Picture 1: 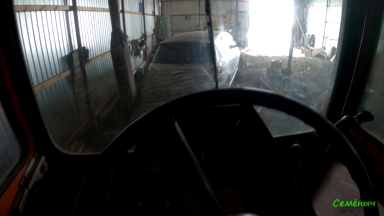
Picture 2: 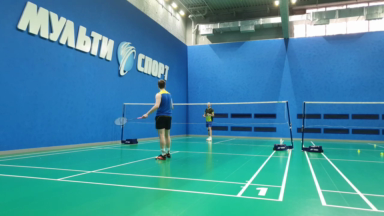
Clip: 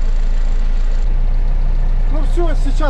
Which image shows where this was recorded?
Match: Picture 1